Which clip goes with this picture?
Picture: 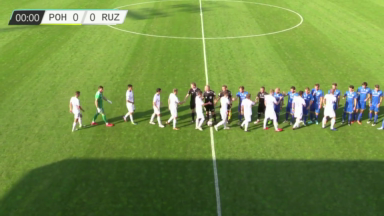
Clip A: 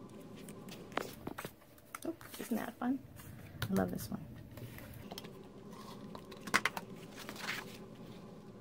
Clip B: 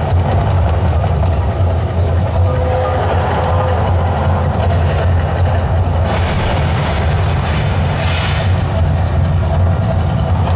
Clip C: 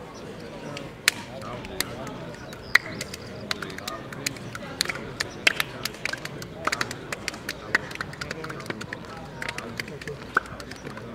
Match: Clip C